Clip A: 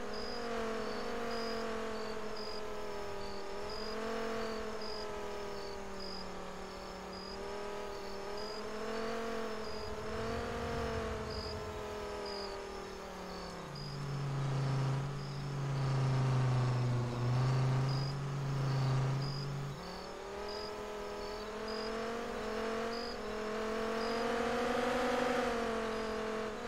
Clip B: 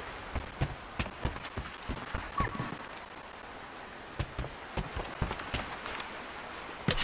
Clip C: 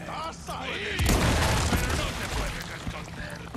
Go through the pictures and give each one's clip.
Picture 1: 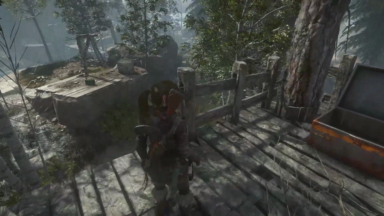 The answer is B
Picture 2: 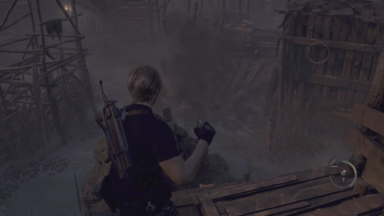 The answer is C